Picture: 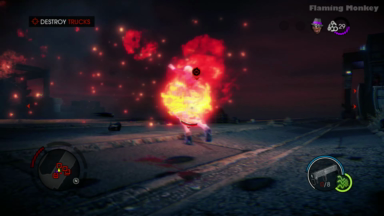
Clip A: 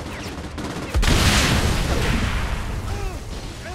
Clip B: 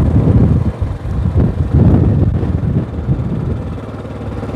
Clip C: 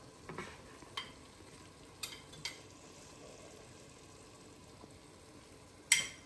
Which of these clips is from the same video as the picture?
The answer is A